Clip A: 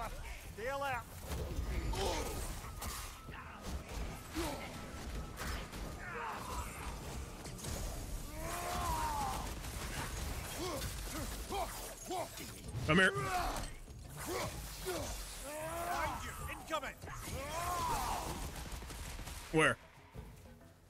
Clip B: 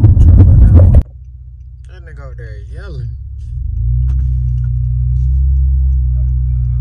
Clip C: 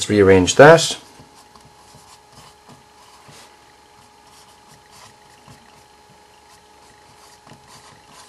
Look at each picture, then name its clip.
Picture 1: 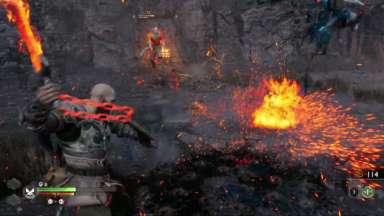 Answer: A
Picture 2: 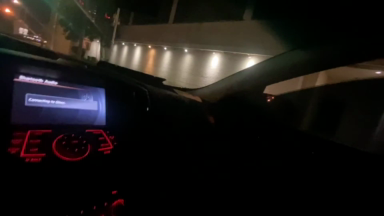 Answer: B